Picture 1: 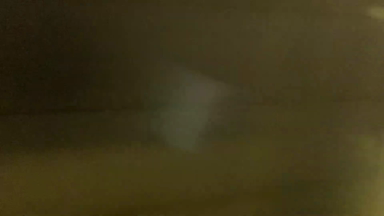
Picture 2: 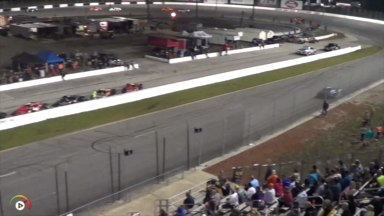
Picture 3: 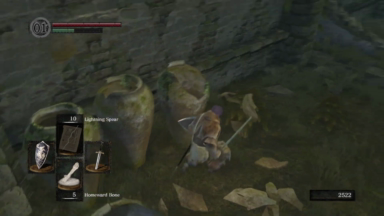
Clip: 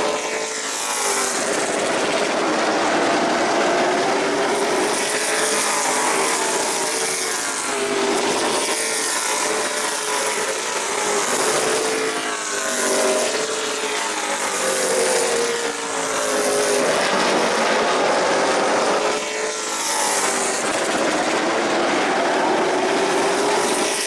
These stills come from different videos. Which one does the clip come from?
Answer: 2